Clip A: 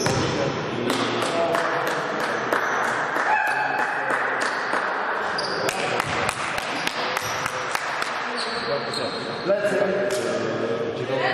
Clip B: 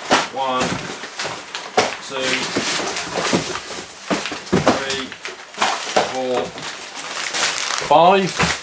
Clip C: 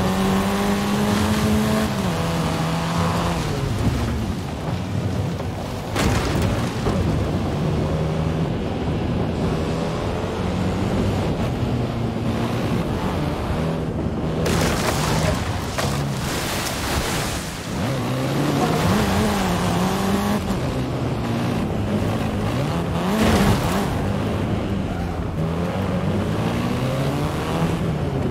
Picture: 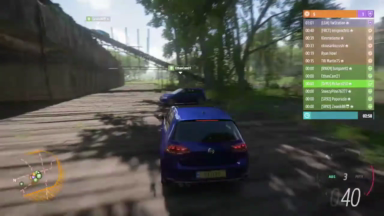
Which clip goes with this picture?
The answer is C